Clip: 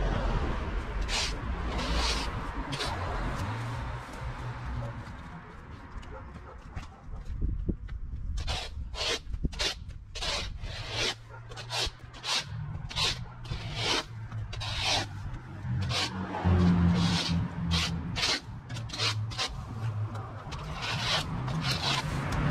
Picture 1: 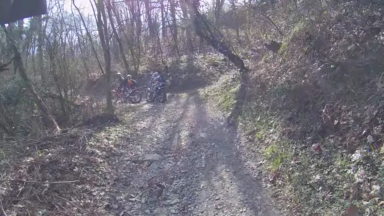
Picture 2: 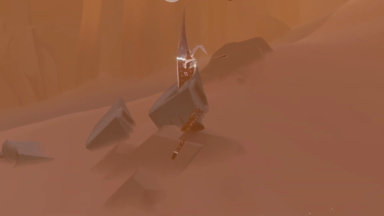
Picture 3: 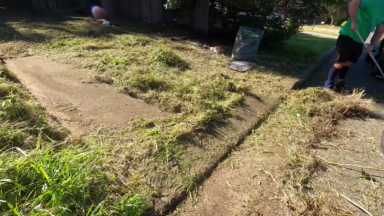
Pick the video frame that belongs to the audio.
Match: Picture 3